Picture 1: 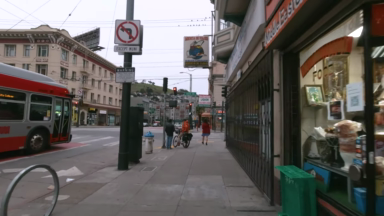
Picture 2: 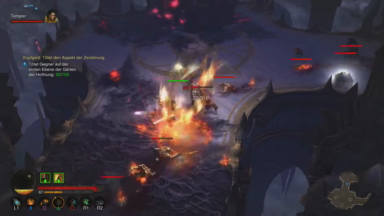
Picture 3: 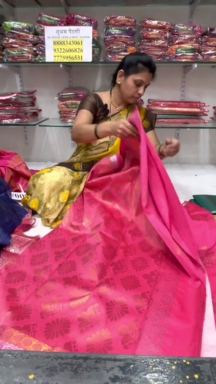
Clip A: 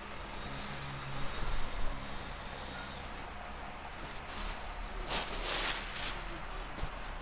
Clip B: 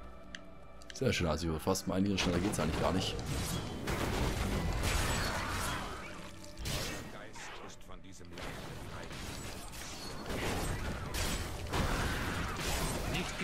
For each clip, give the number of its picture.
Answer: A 3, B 2